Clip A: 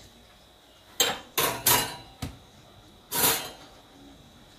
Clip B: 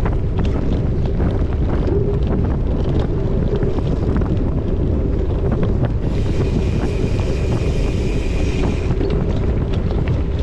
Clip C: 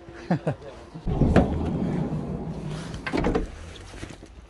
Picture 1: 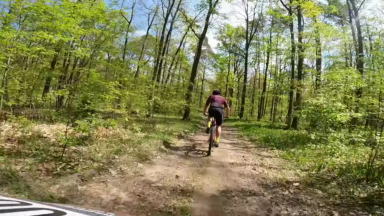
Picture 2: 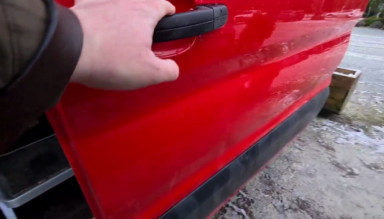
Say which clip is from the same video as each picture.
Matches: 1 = B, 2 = C